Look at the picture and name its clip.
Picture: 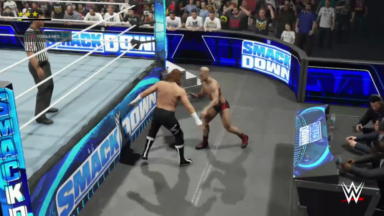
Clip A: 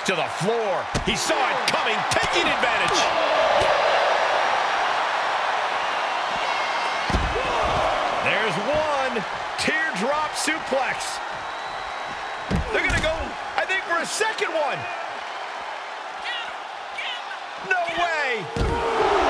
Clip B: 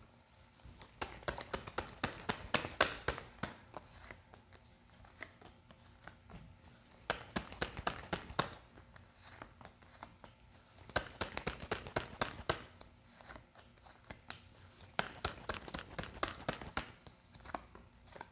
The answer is A